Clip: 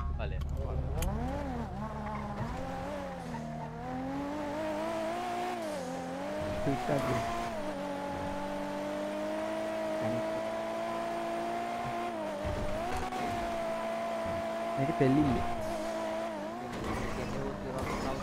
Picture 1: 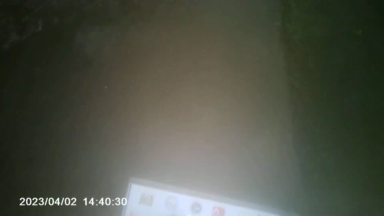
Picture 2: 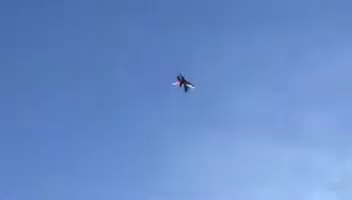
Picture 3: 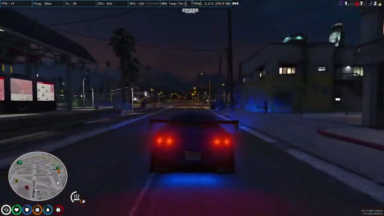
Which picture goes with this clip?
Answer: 3